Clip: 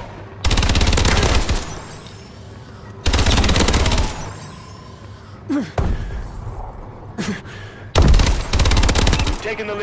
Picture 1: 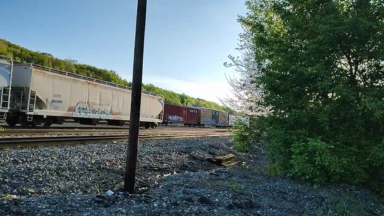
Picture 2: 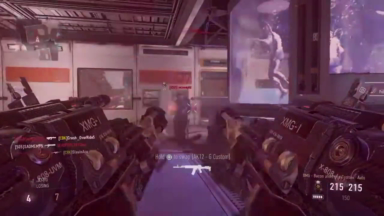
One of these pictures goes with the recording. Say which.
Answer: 2